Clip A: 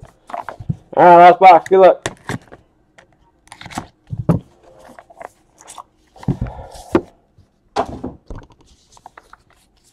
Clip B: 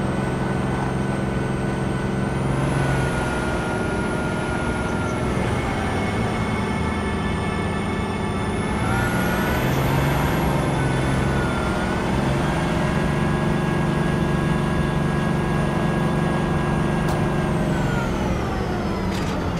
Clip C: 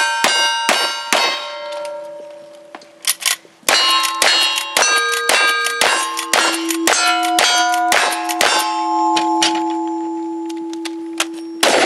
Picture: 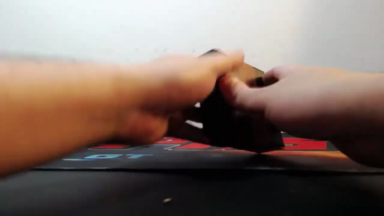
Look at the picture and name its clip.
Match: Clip A